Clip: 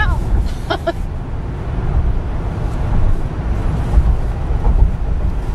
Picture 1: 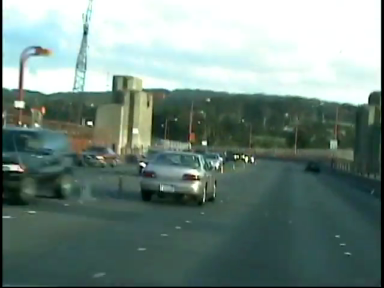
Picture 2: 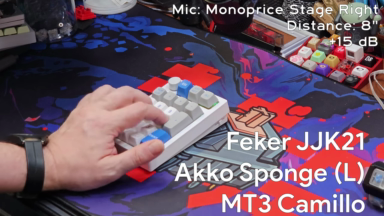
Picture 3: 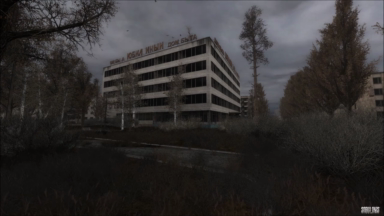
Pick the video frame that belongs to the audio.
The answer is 1